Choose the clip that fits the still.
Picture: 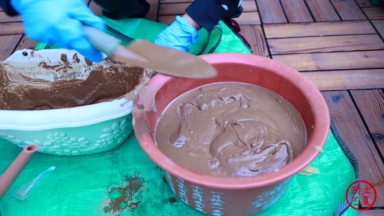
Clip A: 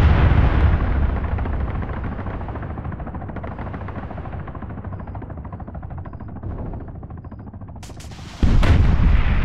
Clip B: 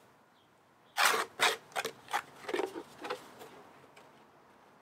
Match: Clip B